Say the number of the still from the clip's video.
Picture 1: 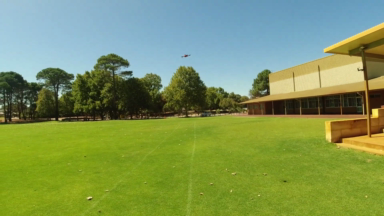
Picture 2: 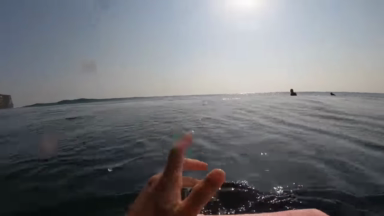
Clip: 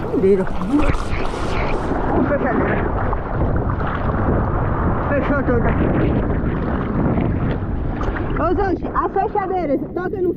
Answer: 2